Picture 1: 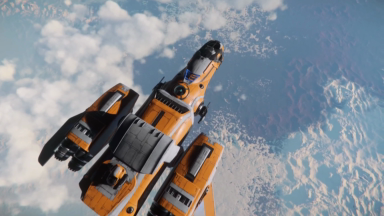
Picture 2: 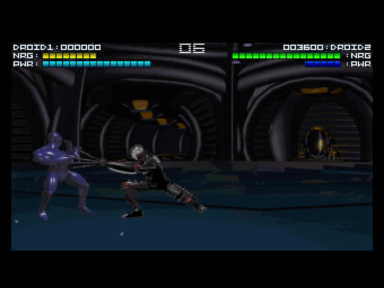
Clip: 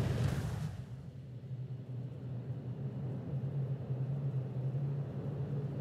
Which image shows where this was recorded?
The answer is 1